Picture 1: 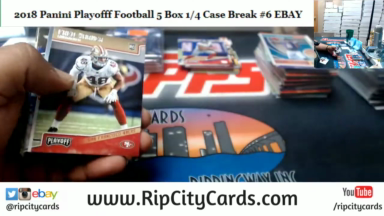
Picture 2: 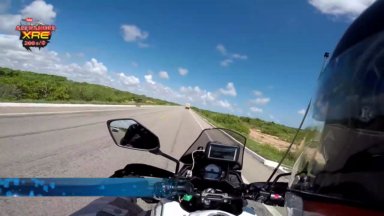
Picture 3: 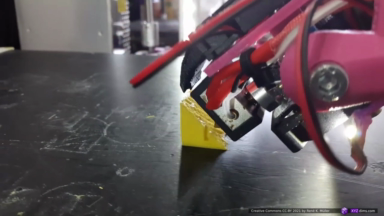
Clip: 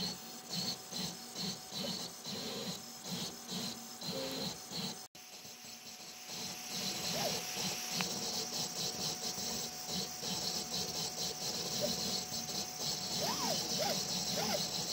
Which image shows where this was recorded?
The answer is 3